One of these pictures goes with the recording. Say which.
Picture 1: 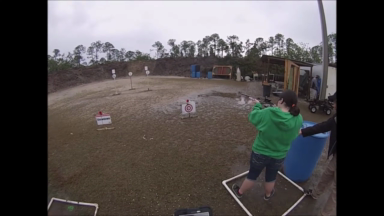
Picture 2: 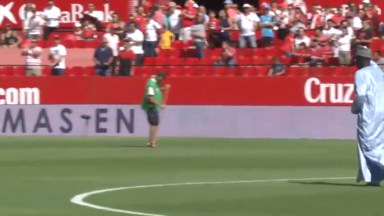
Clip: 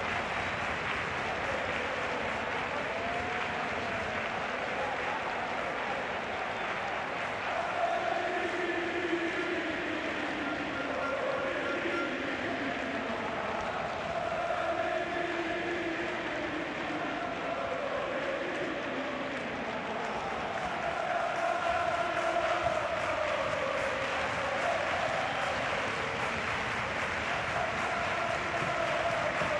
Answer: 2